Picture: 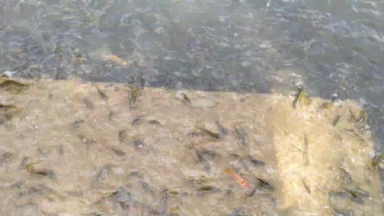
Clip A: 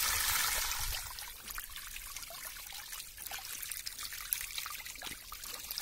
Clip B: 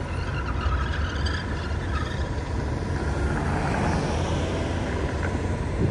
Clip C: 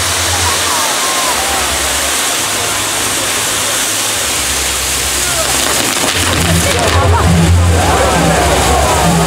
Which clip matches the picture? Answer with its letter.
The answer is A